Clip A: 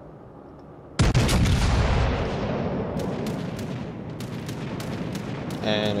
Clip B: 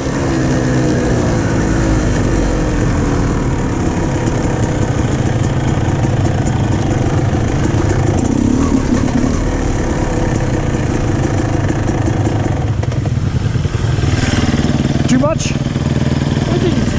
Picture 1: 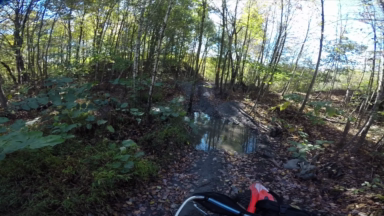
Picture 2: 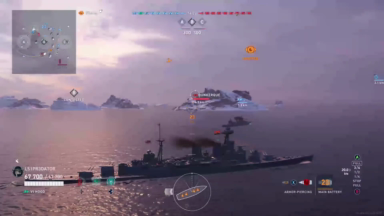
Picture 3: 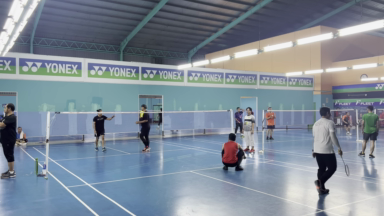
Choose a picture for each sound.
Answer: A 2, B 1